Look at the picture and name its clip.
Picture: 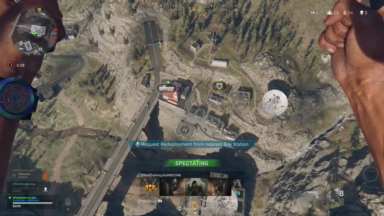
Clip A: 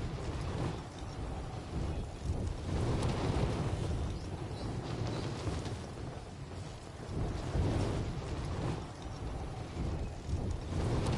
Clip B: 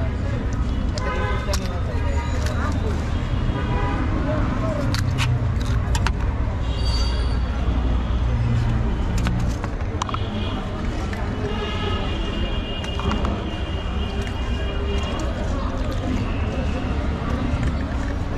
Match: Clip A